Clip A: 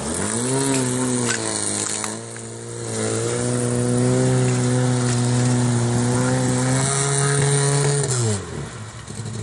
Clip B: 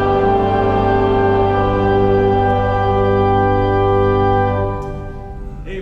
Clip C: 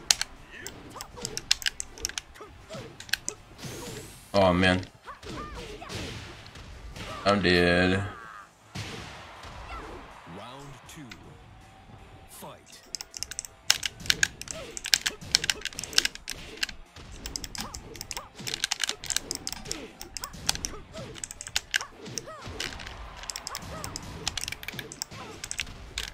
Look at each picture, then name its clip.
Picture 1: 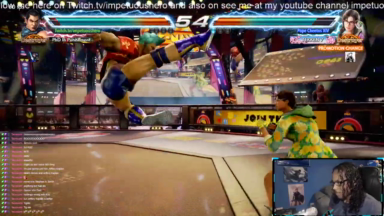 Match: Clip C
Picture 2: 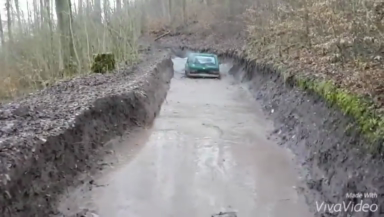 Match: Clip A